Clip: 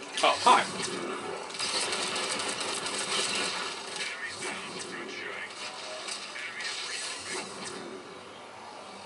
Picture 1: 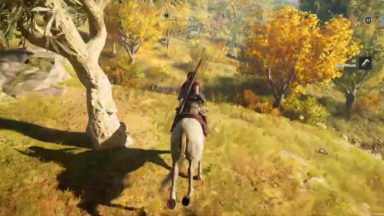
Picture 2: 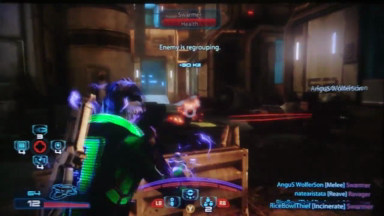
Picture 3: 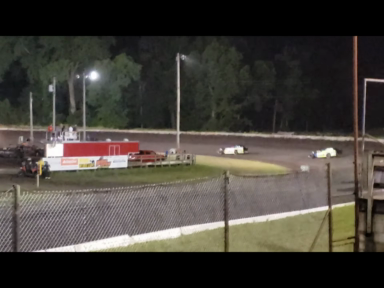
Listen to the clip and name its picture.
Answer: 2